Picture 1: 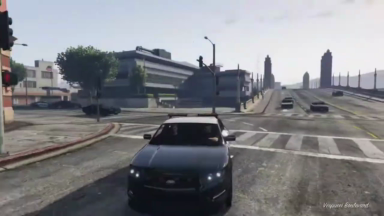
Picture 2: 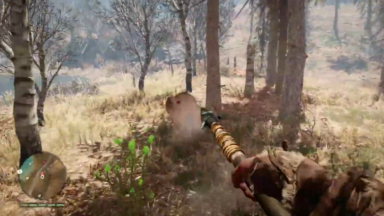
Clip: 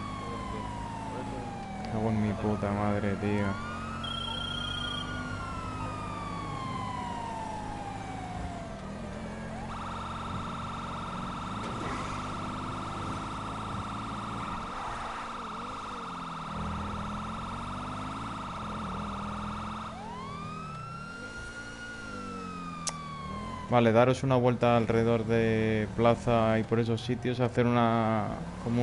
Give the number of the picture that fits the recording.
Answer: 1